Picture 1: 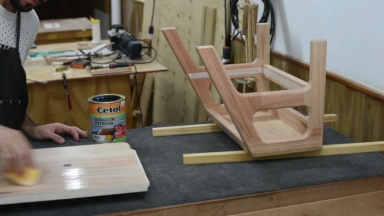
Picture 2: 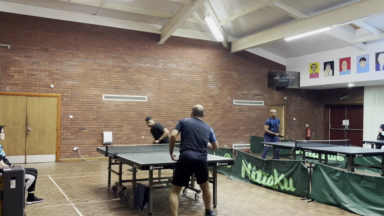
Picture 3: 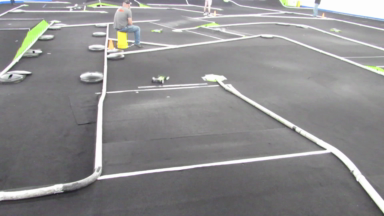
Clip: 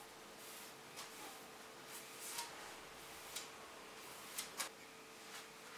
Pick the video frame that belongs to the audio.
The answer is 1